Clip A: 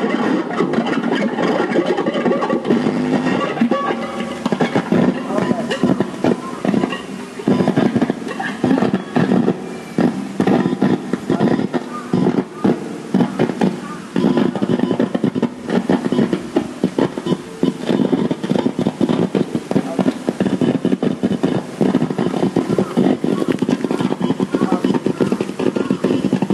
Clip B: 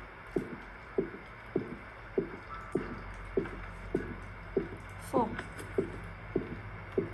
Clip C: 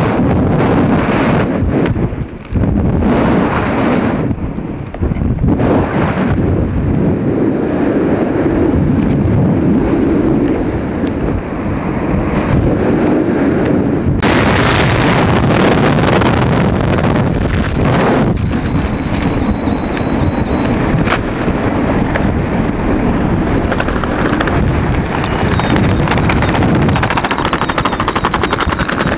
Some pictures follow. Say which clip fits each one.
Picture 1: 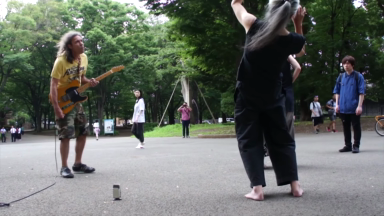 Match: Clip A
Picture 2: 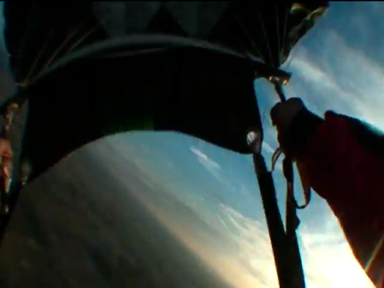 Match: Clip C